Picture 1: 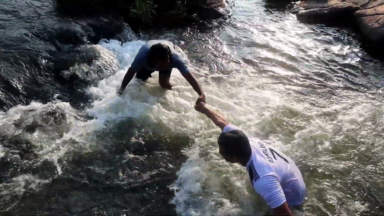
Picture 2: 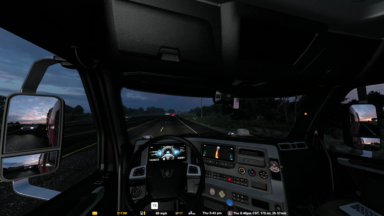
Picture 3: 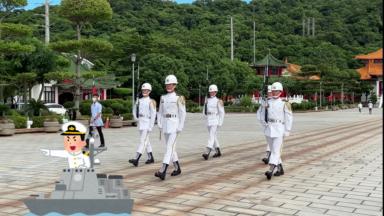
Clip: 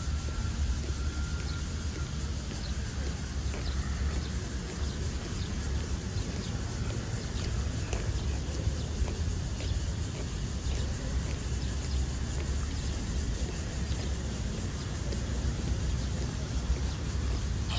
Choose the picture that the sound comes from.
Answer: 3